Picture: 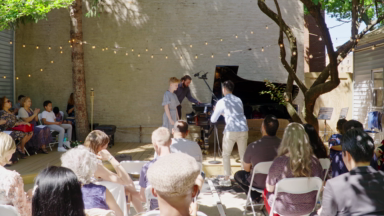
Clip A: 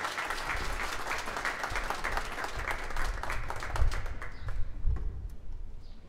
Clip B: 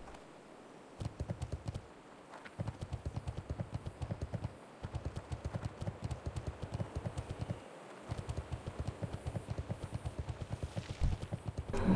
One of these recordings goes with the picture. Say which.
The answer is A